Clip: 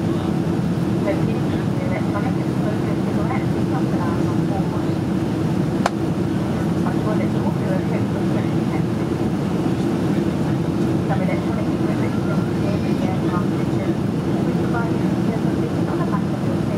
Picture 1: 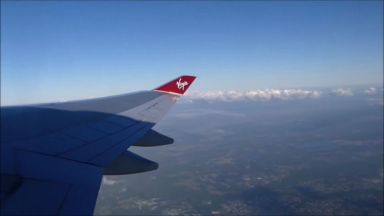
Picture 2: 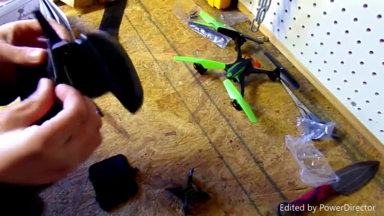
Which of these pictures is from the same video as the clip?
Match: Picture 1